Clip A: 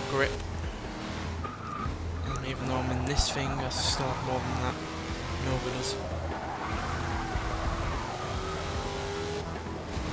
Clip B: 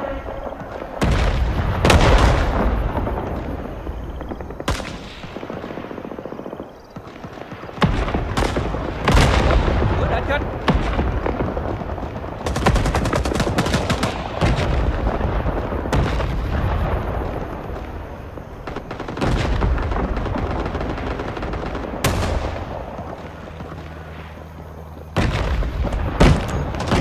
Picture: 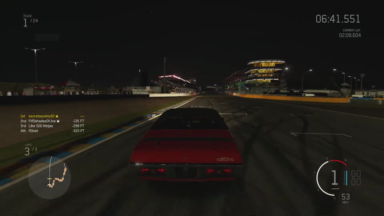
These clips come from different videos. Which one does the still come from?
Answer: A